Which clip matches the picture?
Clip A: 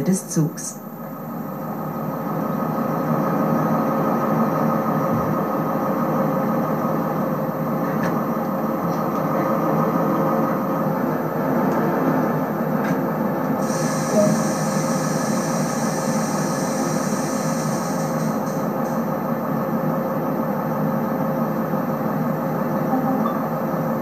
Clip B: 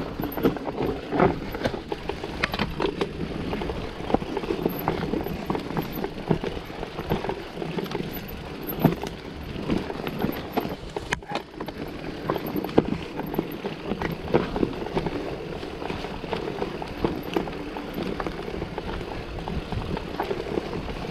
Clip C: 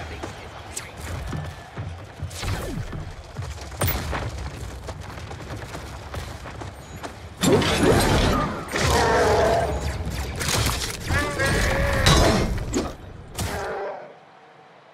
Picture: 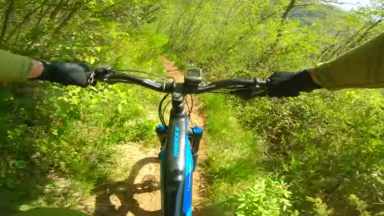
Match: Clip B